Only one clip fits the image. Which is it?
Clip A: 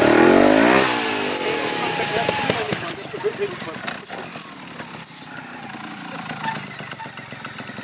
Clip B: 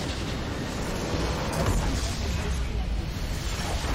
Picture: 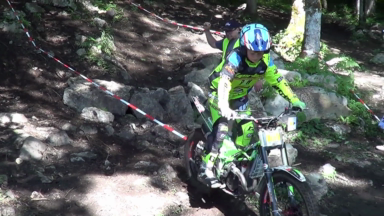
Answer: A